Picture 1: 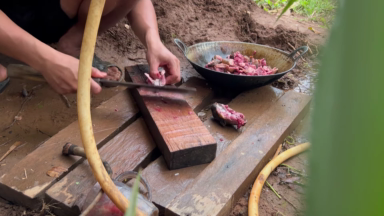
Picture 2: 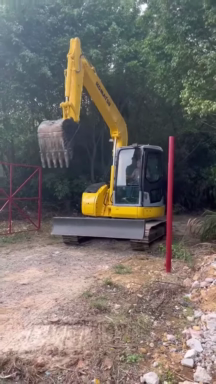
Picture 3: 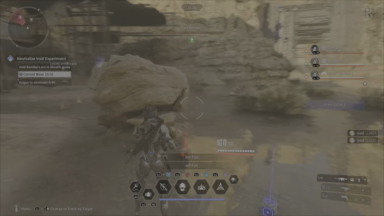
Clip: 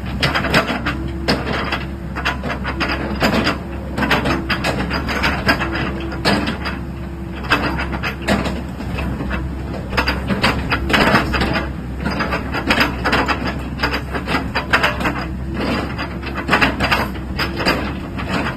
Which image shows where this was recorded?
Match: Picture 2